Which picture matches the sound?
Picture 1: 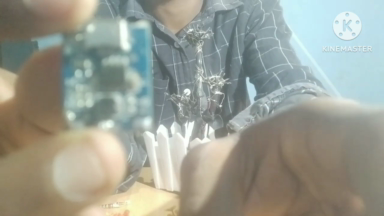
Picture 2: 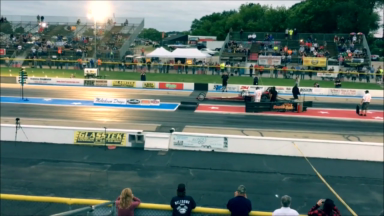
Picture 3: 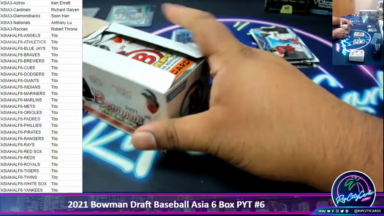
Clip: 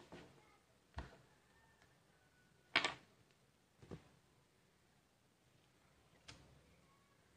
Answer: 1